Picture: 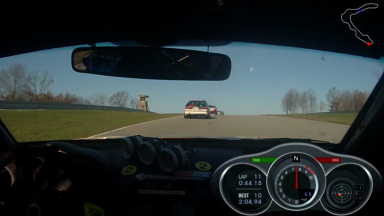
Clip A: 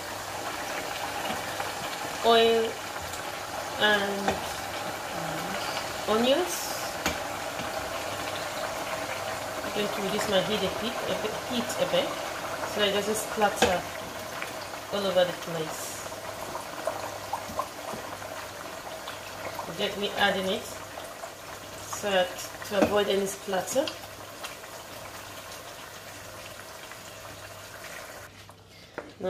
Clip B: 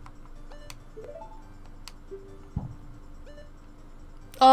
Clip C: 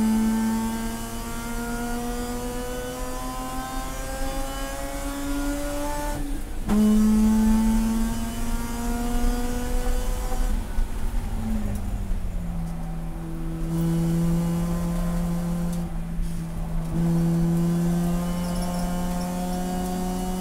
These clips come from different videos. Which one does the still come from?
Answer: C